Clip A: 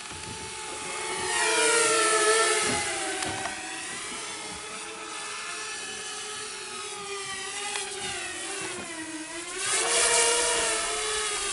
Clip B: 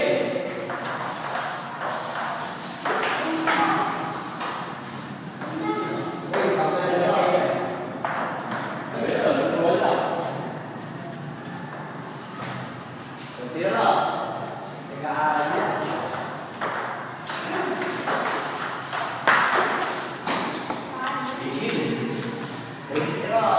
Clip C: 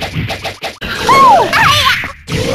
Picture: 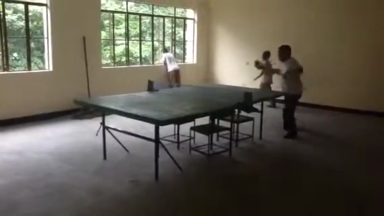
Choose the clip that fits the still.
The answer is B